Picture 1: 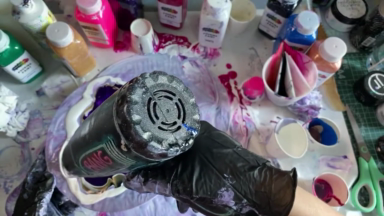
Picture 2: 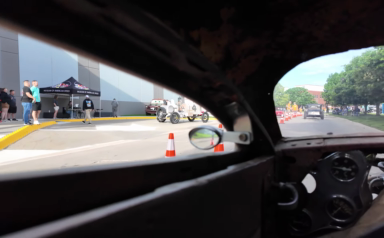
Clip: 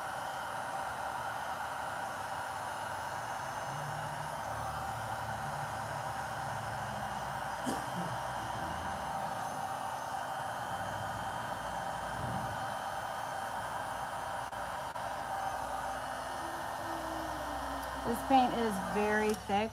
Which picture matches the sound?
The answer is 1